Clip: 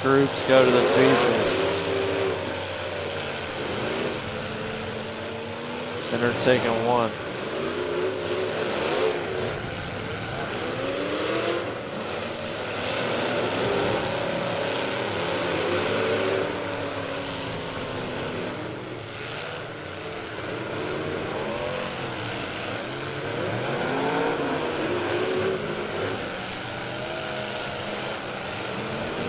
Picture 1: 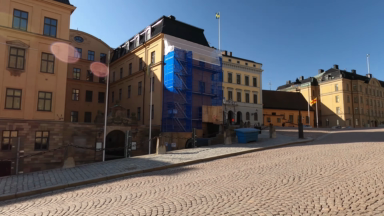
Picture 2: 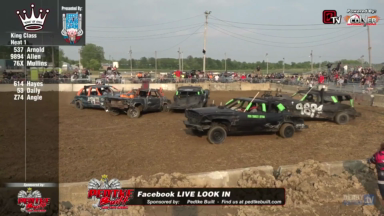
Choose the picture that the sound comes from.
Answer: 2